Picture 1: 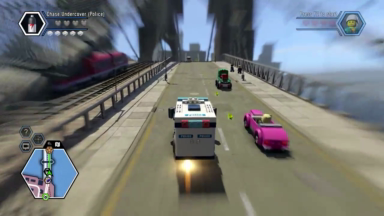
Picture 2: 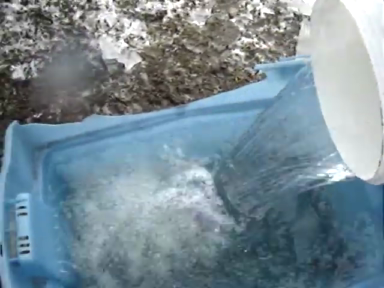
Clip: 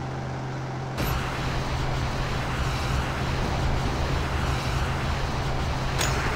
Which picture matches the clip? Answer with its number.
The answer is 1